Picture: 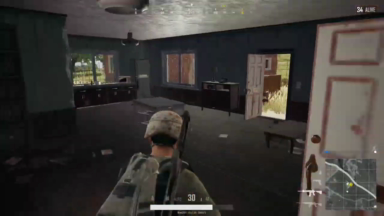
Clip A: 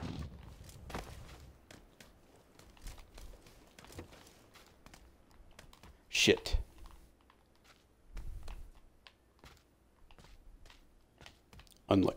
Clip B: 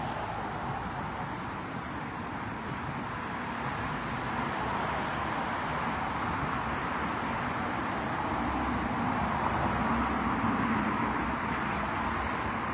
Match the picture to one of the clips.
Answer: A